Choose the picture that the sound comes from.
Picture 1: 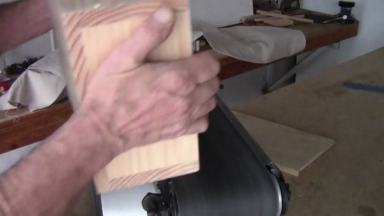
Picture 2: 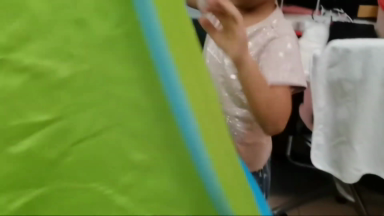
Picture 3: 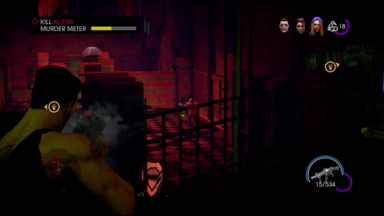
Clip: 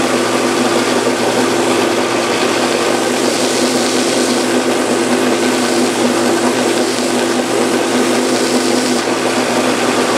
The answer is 1